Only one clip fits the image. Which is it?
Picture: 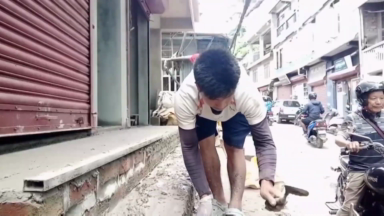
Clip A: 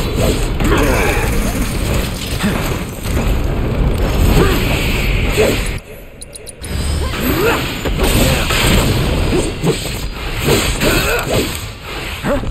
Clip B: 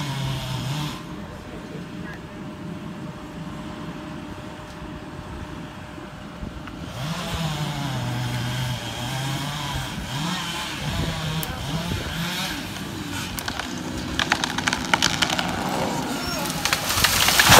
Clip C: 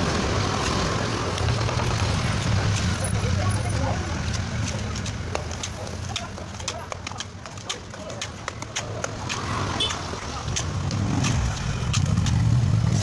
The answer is C